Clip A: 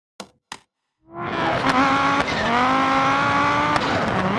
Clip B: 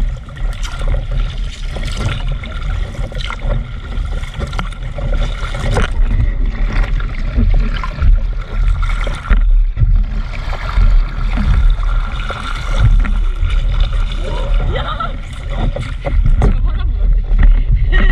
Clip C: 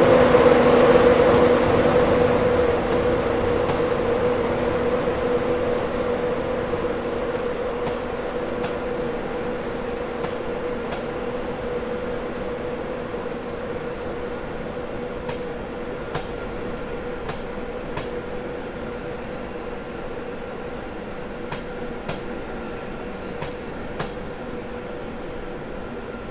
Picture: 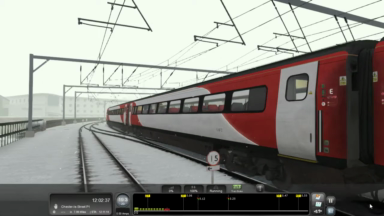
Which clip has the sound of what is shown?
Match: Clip C